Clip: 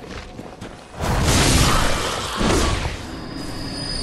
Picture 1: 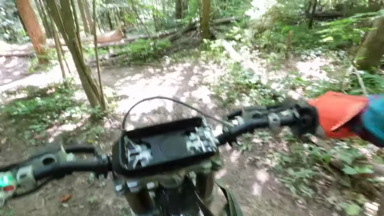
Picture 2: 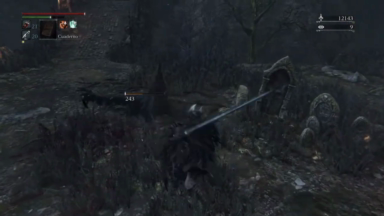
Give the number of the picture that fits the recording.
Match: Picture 2